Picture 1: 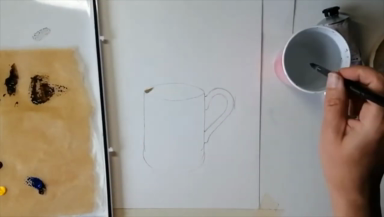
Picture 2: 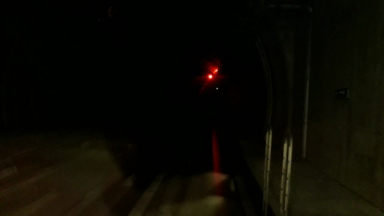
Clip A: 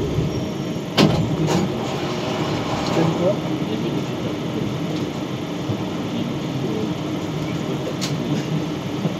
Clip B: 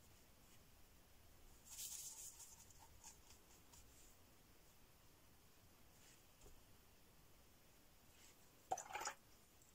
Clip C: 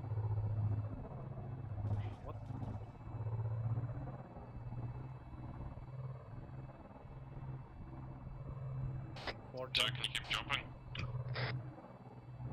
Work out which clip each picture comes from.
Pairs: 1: B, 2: A